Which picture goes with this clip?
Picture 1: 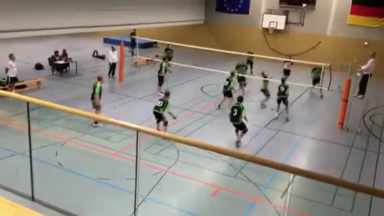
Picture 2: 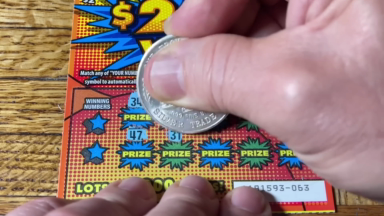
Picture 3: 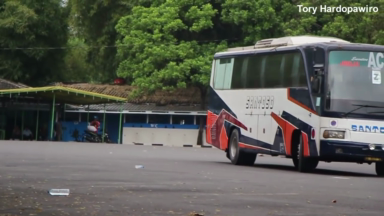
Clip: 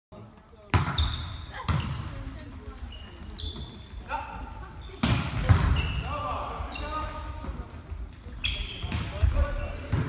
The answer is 1